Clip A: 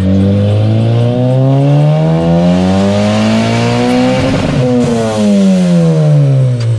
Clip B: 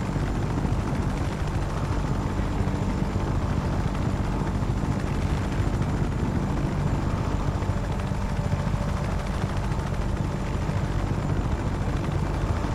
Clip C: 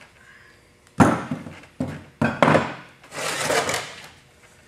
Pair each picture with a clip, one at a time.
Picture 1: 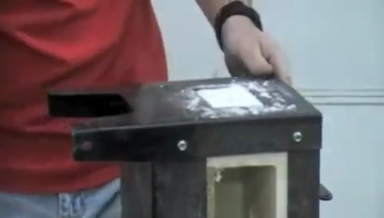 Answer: C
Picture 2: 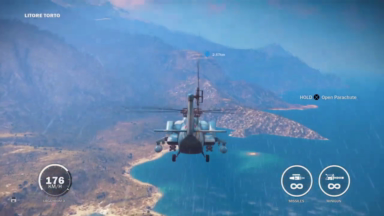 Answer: B